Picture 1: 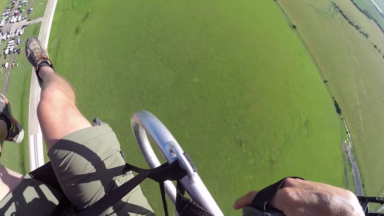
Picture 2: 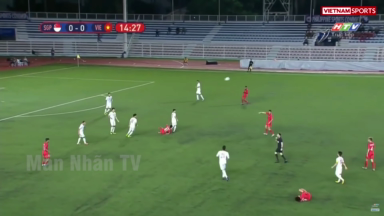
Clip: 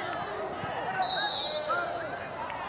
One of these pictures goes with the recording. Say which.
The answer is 2